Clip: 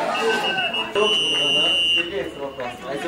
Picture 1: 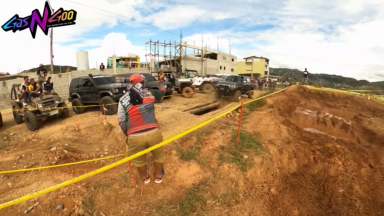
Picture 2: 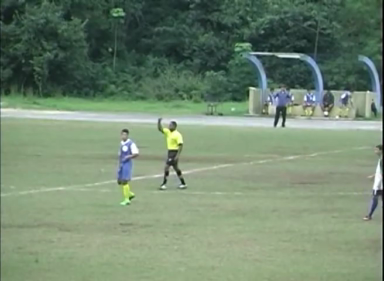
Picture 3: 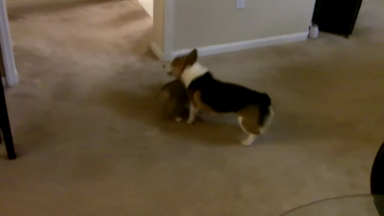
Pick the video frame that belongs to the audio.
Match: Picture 2